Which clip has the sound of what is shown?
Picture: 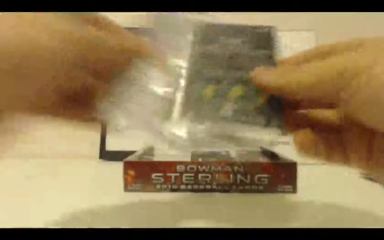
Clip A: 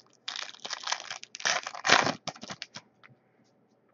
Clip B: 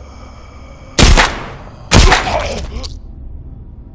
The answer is A